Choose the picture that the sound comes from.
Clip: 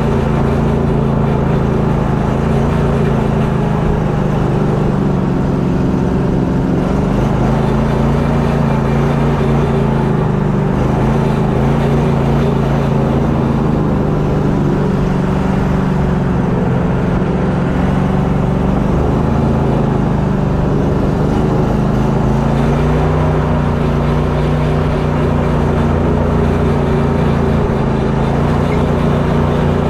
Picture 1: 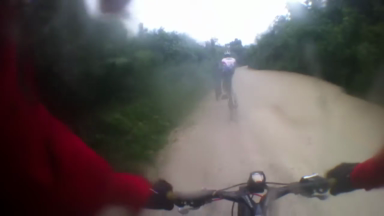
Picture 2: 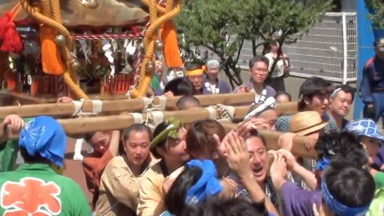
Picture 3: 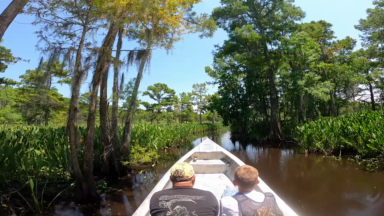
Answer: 3